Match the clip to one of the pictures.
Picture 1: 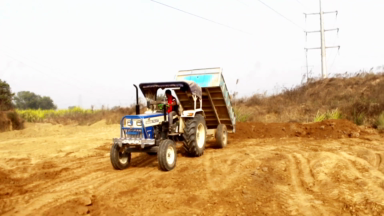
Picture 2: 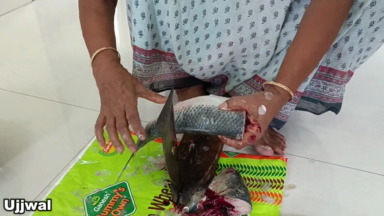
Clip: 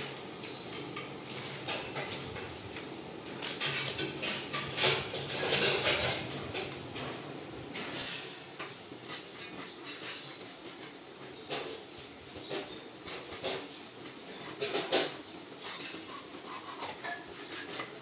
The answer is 2